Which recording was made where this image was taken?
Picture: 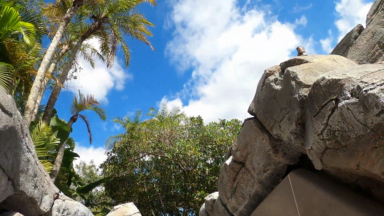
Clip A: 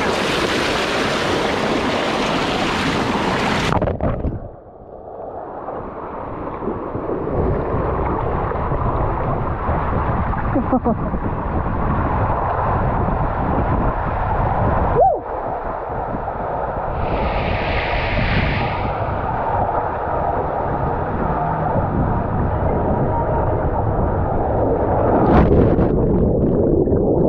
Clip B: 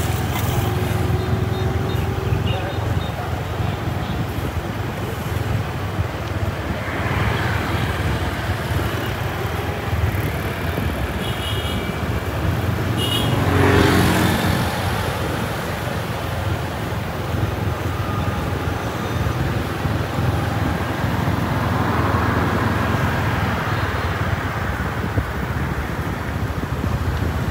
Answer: A